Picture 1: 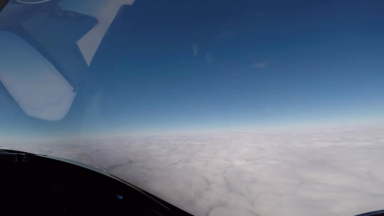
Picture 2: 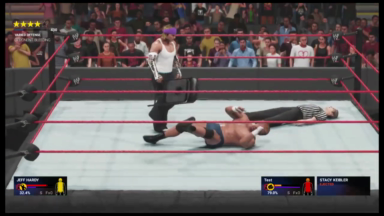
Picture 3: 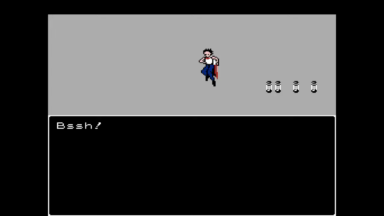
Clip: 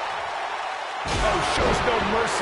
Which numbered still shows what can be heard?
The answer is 2